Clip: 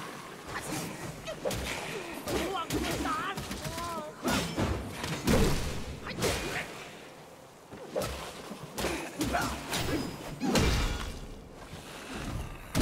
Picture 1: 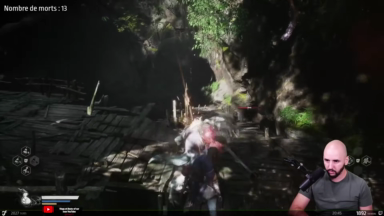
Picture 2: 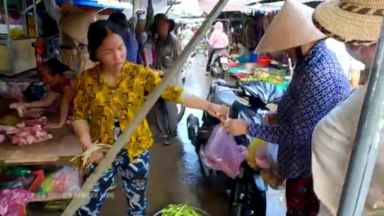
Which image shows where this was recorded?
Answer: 1